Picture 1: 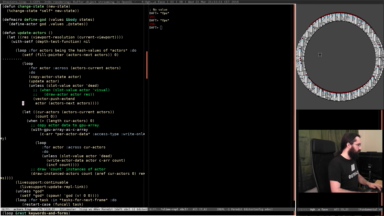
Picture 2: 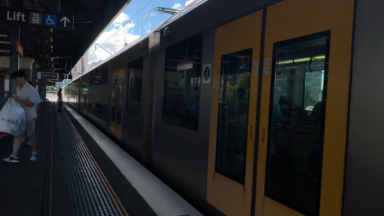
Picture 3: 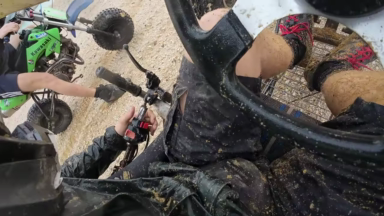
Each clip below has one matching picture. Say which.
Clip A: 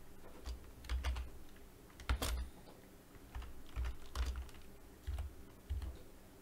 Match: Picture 1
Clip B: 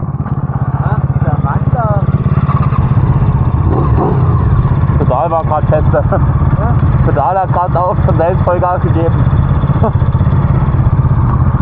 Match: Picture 3